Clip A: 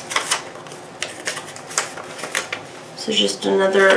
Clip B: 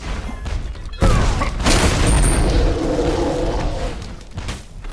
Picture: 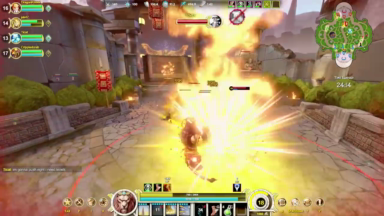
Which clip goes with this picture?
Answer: B